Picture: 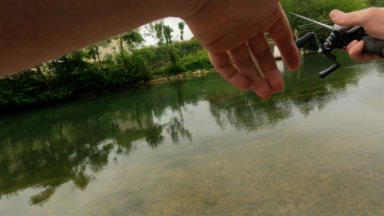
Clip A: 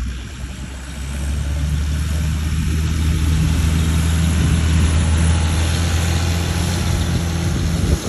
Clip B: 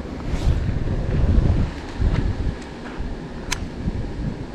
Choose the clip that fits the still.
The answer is B